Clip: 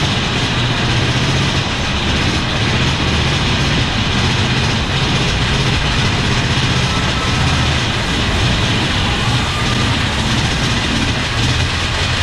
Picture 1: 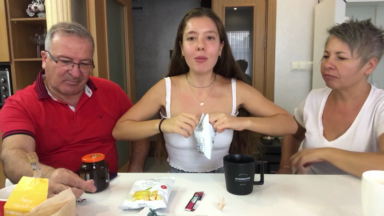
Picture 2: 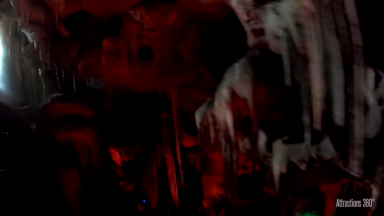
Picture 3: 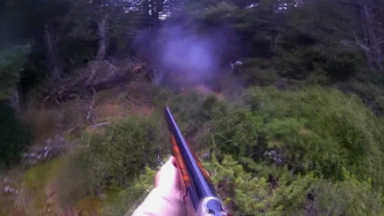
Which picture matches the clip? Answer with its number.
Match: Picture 2